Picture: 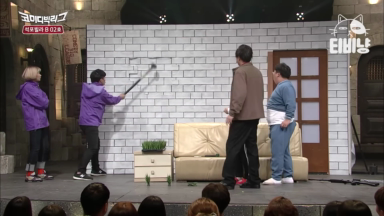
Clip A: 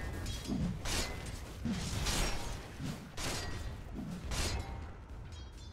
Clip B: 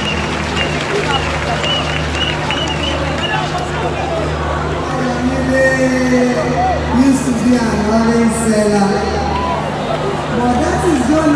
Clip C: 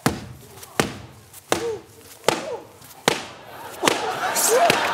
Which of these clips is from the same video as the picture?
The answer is C